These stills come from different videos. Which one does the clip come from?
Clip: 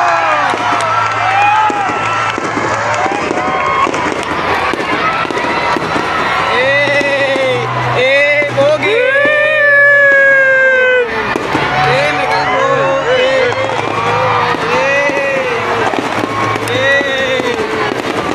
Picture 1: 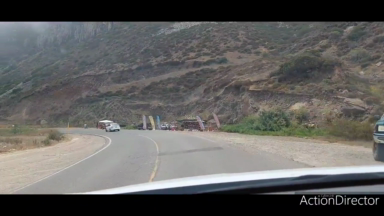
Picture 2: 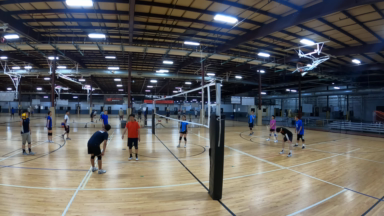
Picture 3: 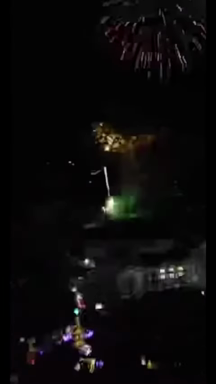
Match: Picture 3